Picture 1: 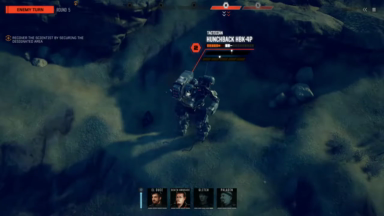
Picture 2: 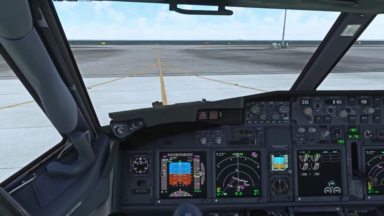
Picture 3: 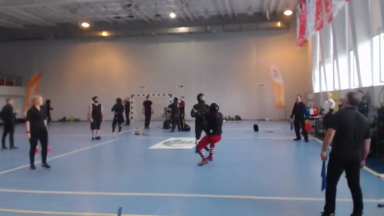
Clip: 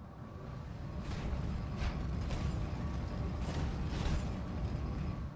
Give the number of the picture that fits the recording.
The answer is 1